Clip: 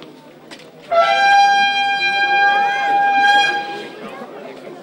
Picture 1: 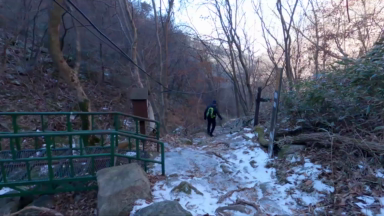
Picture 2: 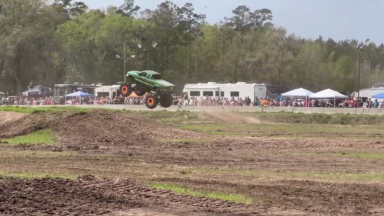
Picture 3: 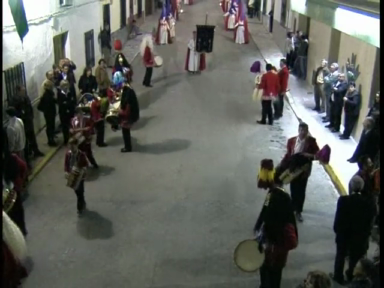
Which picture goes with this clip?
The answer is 3